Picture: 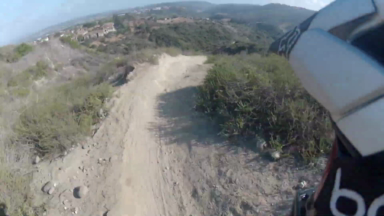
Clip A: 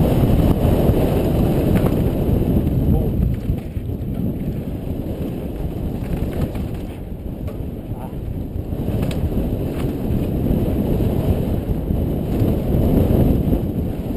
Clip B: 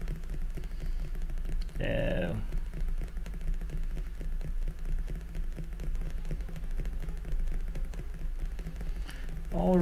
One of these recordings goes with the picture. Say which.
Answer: A